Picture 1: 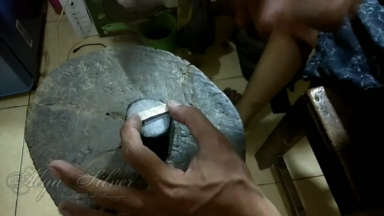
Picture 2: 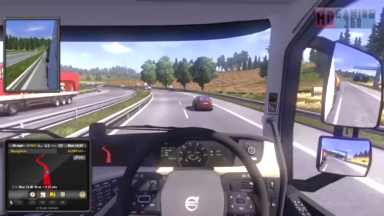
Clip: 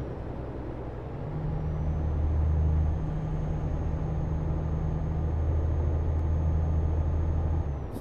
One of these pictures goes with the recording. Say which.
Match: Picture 2